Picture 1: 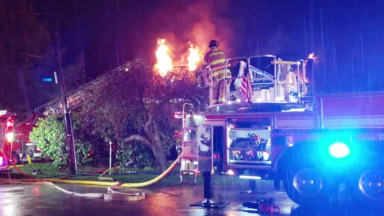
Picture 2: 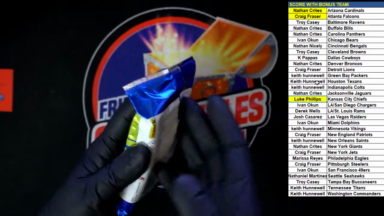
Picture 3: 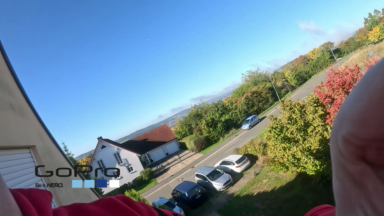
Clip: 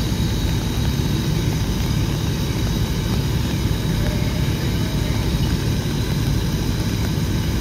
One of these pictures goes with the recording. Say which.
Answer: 1